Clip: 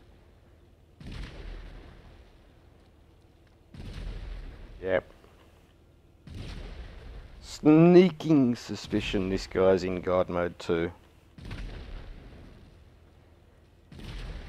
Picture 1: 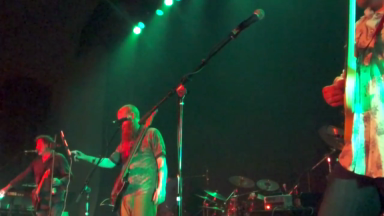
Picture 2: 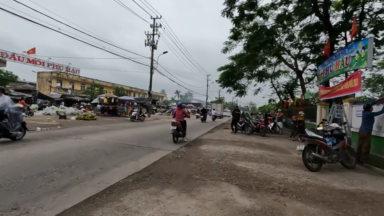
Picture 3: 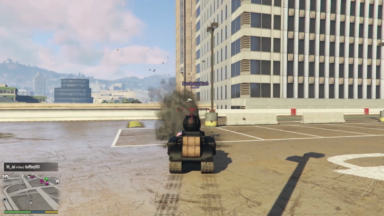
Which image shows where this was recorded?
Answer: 3